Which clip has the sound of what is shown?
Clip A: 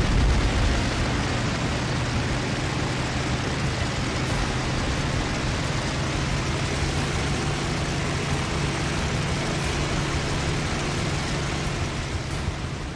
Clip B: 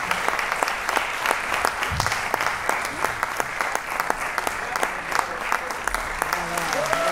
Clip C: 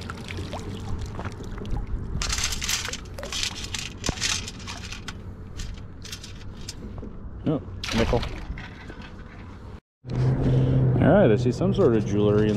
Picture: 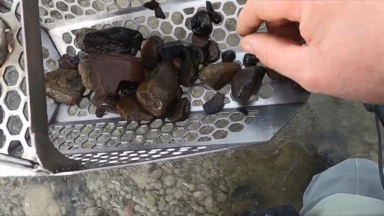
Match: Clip C